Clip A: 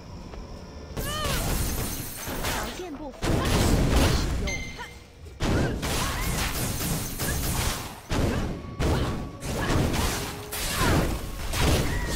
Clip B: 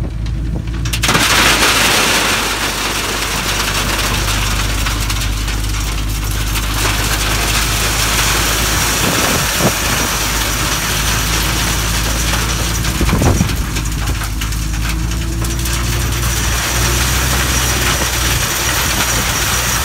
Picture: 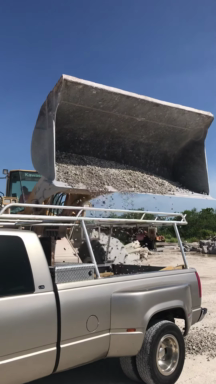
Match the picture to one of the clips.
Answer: B